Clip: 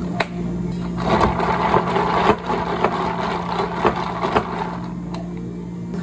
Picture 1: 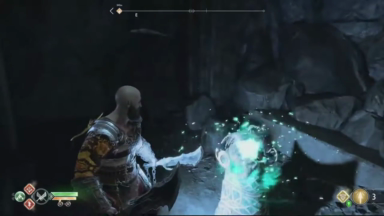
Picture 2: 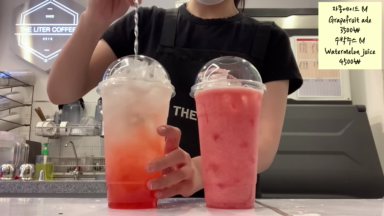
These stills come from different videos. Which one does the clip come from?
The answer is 2